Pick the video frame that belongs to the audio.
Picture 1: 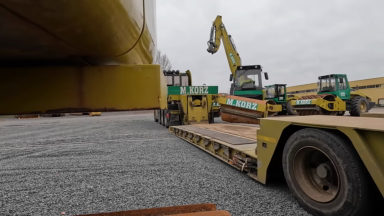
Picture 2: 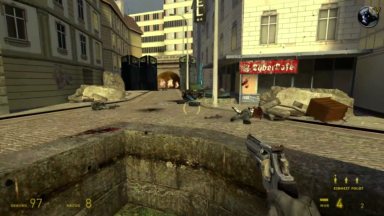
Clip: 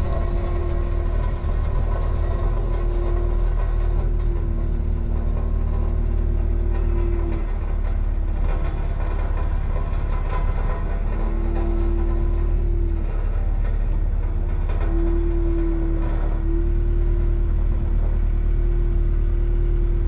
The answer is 1